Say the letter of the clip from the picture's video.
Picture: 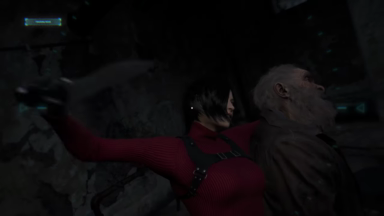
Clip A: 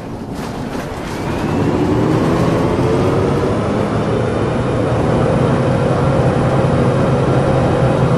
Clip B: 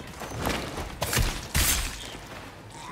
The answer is B